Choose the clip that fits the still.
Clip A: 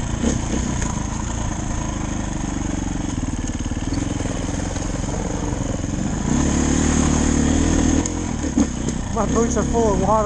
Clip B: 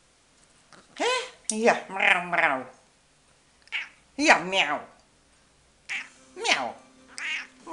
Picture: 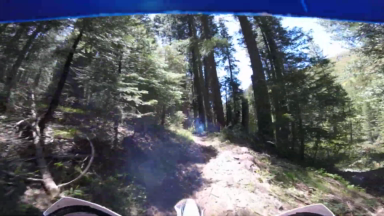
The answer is A